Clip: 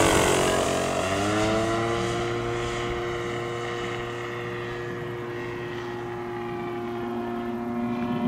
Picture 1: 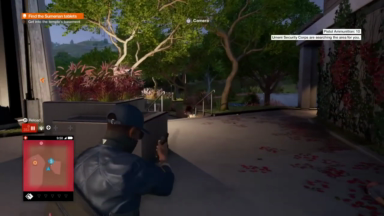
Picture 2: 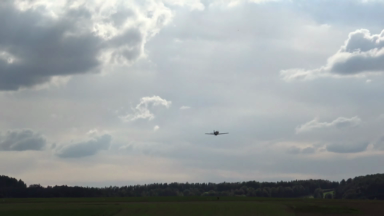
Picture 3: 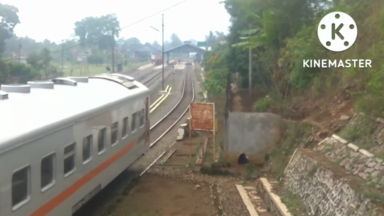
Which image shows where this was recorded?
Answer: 2